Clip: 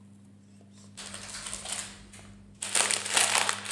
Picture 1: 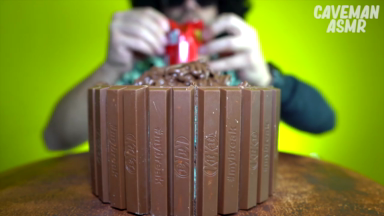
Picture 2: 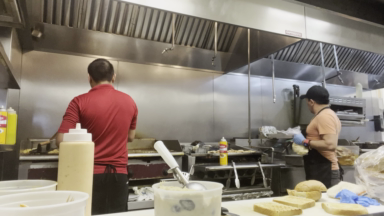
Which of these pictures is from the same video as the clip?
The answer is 1